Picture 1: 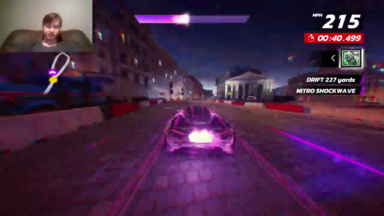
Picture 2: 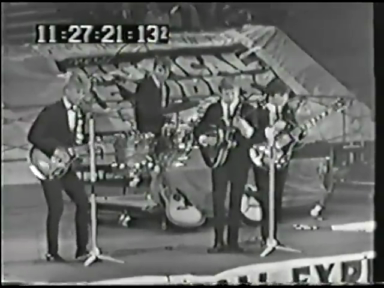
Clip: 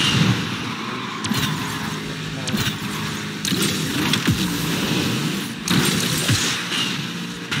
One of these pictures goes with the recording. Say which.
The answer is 1